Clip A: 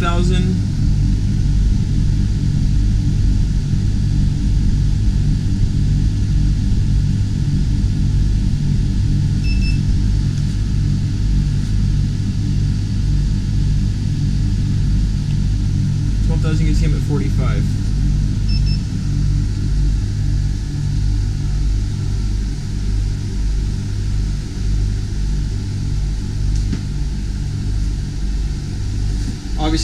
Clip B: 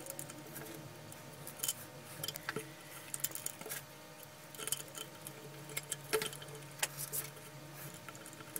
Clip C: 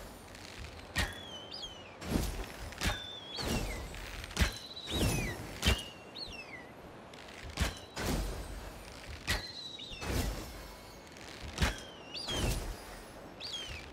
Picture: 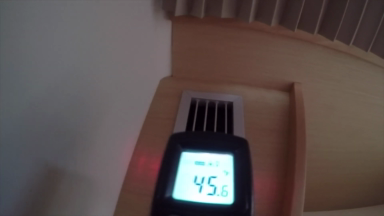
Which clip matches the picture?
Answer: A